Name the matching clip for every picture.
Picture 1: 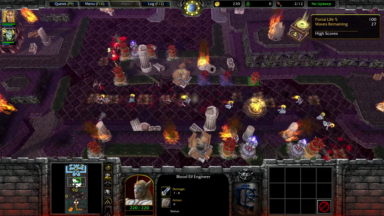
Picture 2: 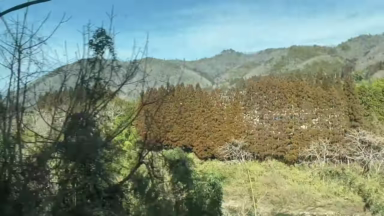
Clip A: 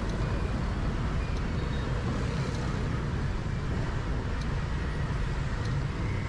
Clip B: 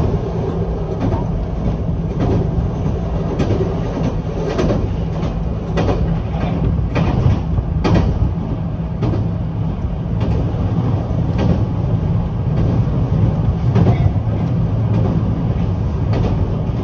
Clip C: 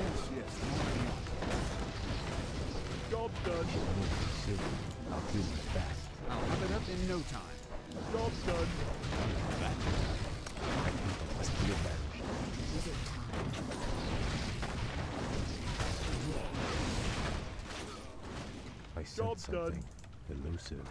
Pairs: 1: C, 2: B